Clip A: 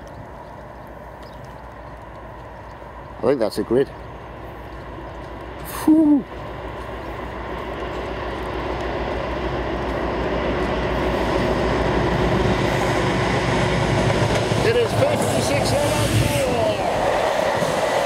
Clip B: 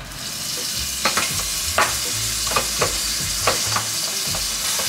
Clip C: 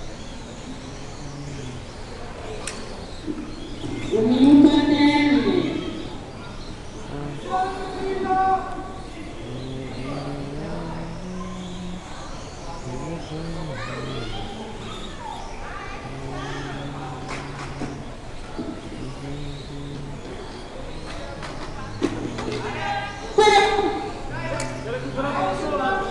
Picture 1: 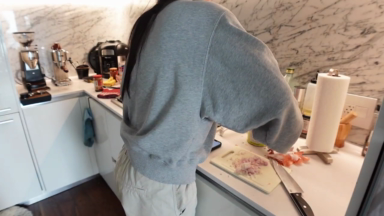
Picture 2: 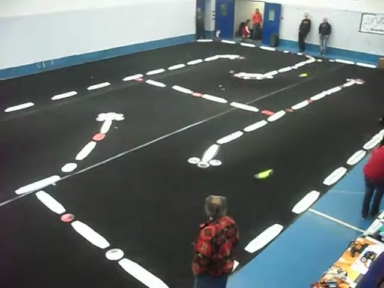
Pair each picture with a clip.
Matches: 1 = B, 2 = C